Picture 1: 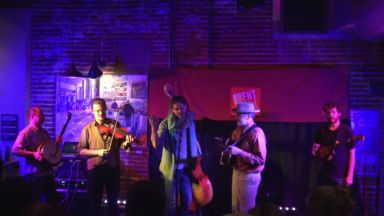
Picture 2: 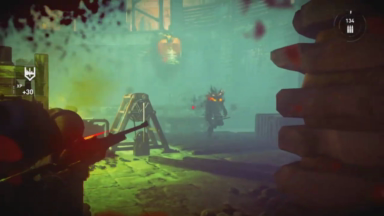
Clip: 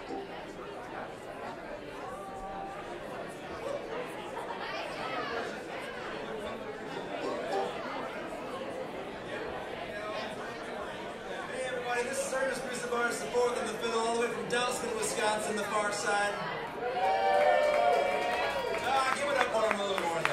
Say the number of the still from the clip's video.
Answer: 1